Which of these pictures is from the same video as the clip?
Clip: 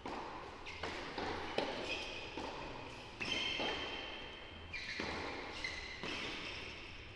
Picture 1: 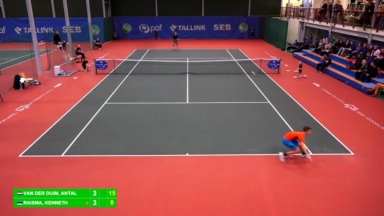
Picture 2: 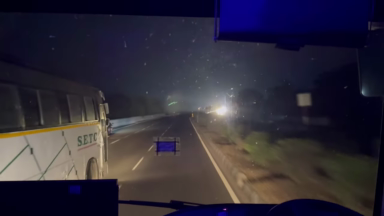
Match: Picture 1